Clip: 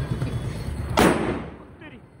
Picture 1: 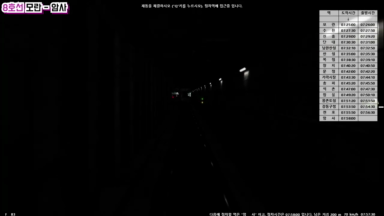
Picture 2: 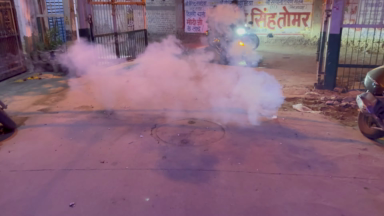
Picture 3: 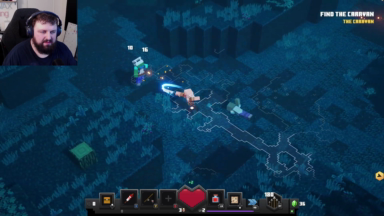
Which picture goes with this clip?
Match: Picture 2